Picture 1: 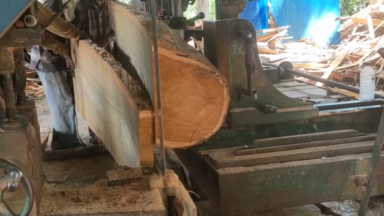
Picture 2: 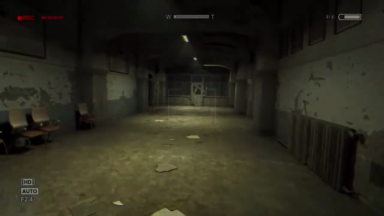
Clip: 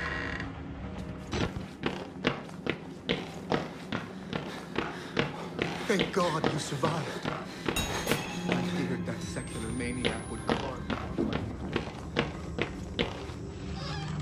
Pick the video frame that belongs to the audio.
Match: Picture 2